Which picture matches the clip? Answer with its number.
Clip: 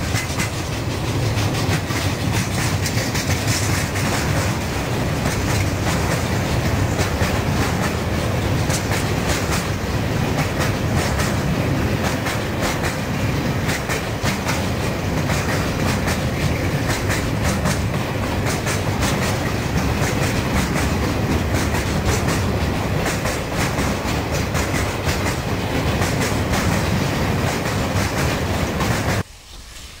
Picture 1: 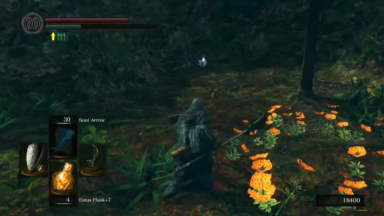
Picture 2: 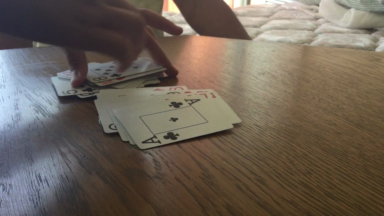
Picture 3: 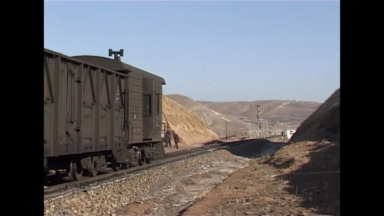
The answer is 3